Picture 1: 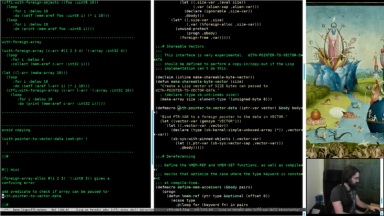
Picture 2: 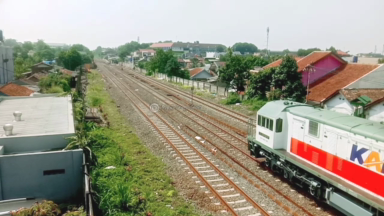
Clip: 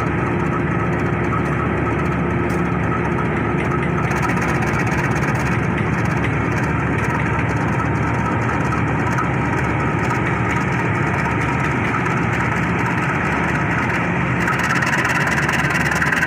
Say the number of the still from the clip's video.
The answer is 2